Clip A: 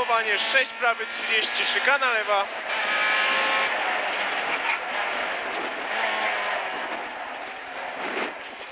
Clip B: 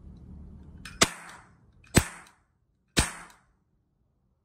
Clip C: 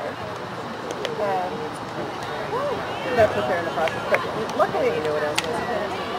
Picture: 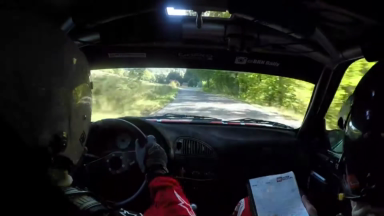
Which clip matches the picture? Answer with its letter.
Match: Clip A